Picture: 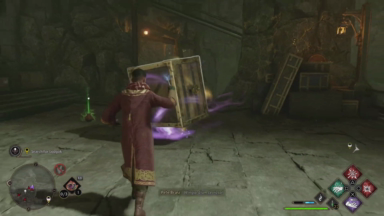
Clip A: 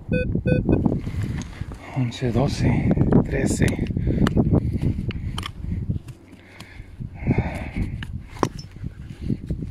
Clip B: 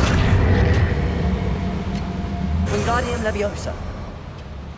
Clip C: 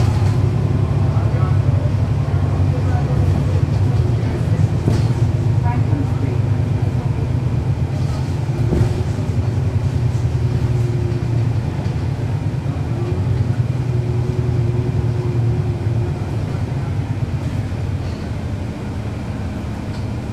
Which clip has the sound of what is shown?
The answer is B